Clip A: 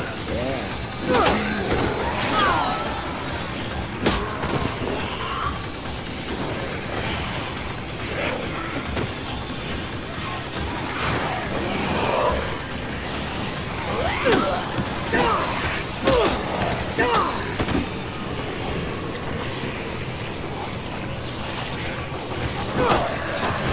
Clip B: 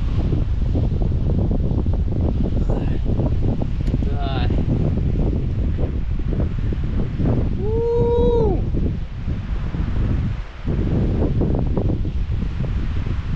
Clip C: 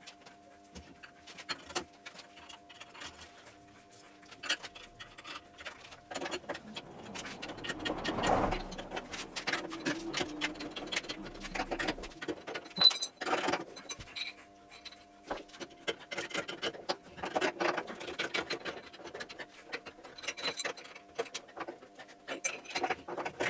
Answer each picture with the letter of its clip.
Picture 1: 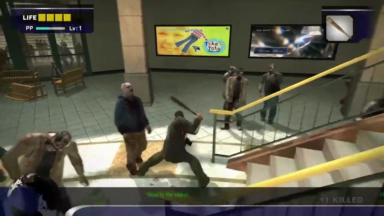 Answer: A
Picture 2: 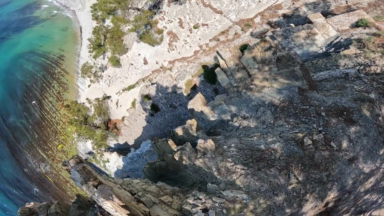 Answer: B